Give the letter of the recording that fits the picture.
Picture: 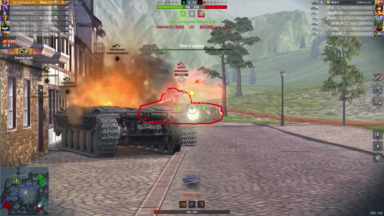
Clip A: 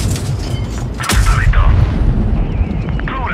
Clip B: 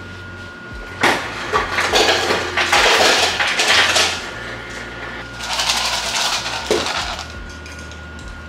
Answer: A